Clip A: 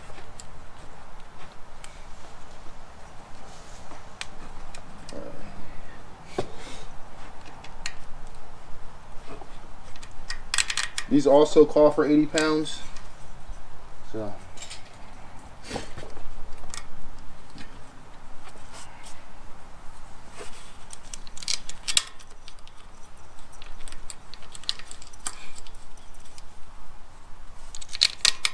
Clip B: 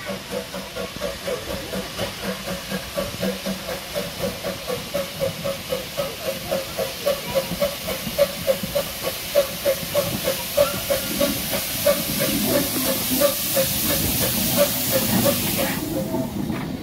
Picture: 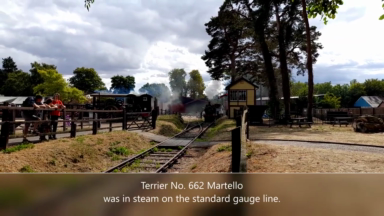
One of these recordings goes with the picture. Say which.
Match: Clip B